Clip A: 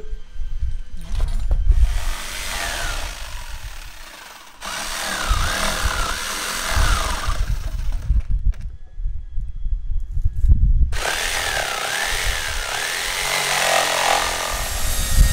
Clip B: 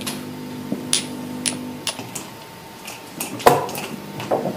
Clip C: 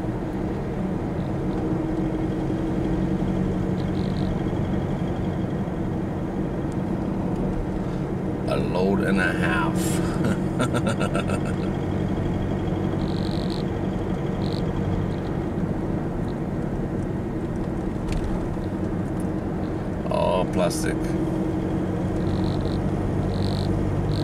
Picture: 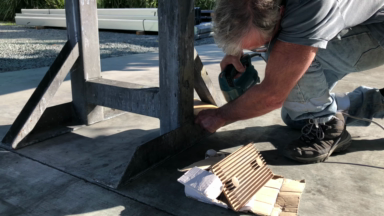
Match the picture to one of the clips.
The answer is A